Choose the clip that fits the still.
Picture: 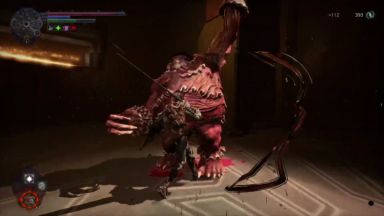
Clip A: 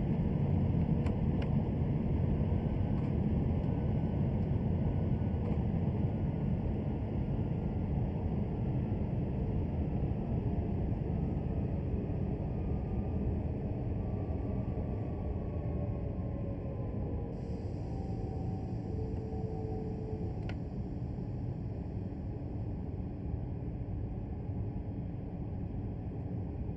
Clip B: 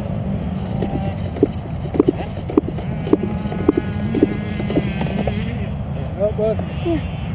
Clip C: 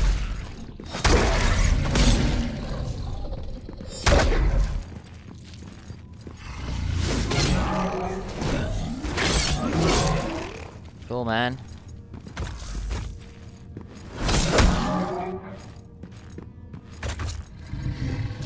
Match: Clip C